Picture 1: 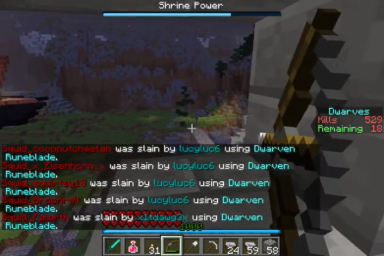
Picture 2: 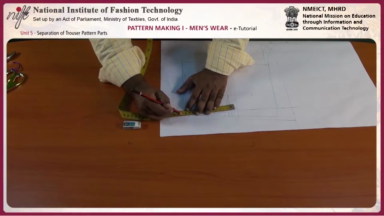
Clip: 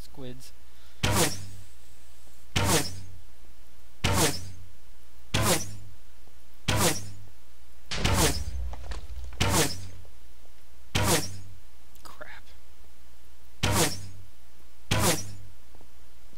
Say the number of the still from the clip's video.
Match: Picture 1